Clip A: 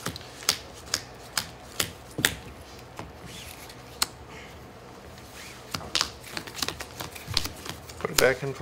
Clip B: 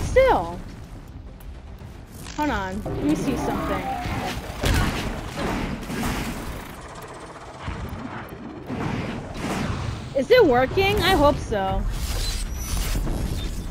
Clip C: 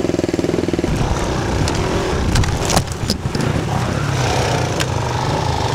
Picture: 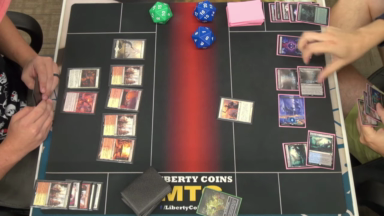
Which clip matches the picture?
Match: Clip A